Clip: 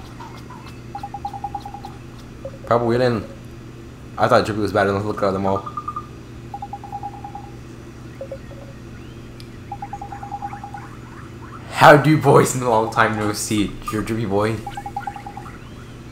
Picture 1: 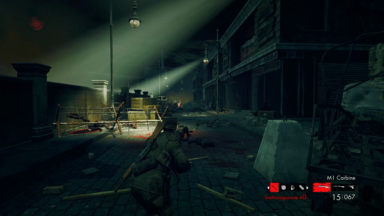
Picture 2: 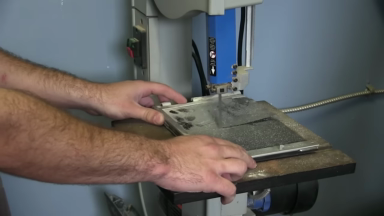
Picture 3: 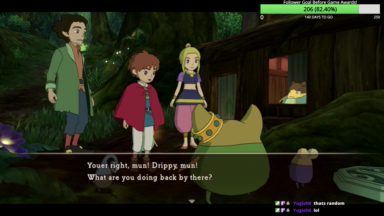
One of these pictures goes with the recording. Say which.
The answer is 3